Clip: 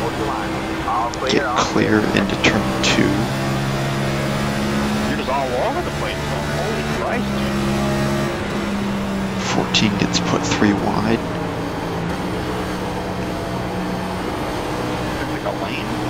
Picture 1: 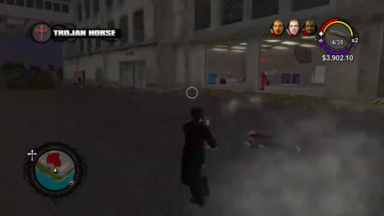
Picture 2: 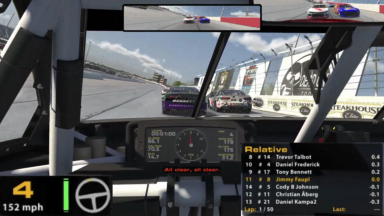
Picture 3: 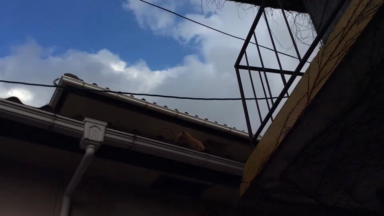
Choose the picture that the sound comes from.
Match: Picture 2